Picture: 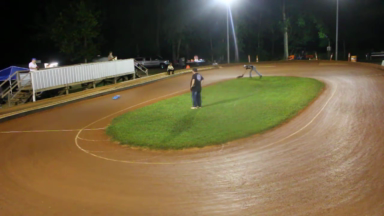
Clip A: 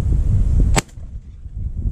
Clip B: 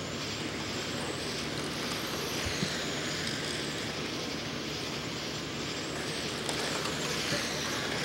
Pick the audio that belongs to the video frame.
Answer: B